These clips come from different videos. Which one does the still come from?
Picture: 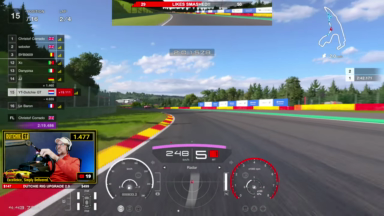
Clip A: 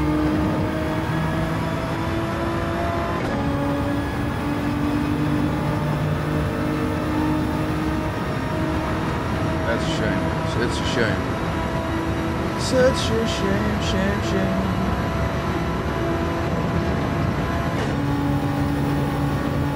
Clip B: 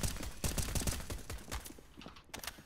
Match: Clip A